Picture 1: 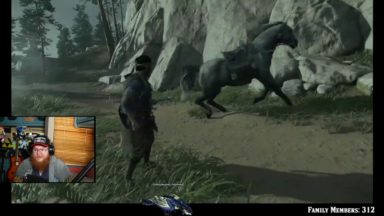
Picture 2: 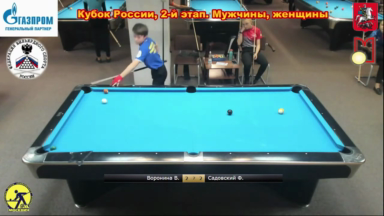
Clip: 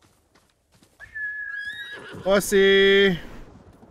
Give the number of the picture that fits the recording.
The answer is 1